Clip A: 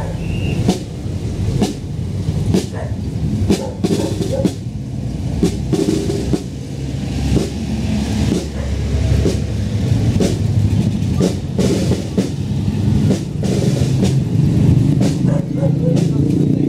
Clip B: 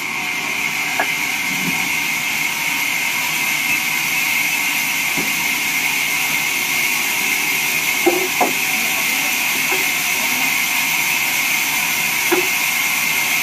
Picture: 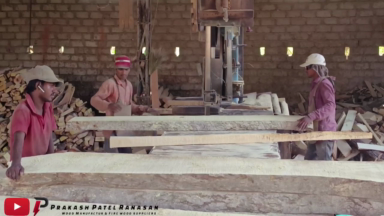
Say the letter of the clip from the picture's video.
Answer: B